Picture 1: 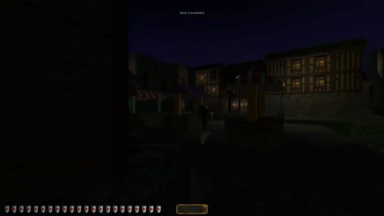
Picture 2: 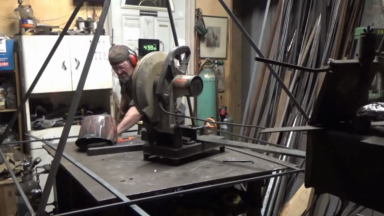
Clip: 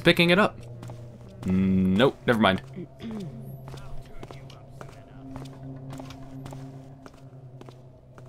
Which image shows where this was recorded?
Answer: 1